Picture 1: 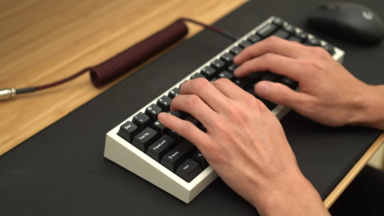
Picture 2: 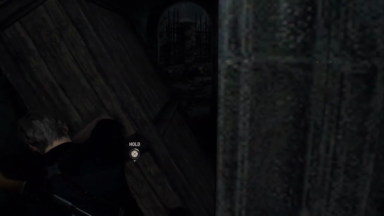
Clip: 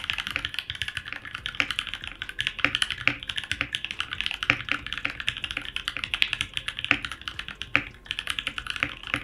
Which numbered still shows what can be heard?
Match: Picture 1